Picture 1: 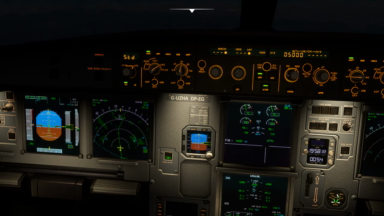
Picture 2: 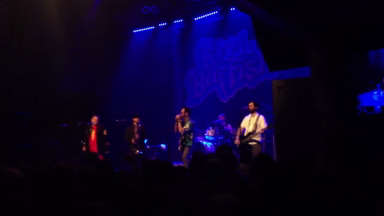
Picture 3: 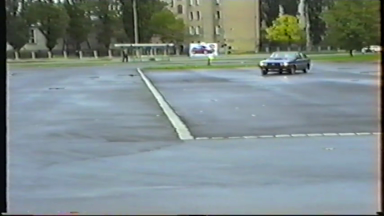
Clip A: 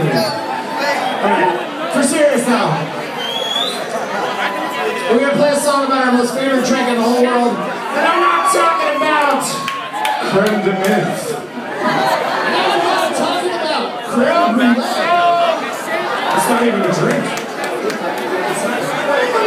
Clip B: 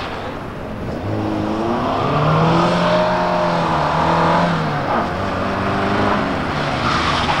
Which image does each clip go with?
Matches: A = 2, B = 3